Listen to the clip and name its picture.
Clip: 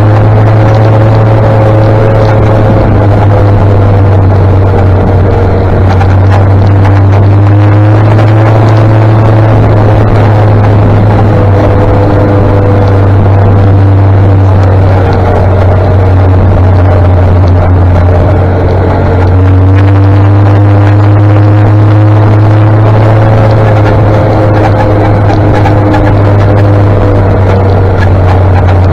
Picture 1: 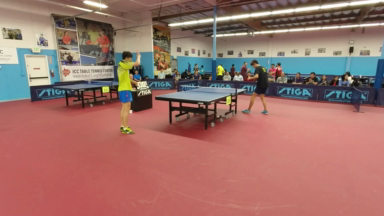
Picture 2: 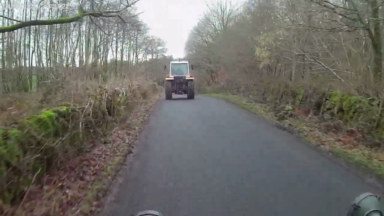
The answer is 2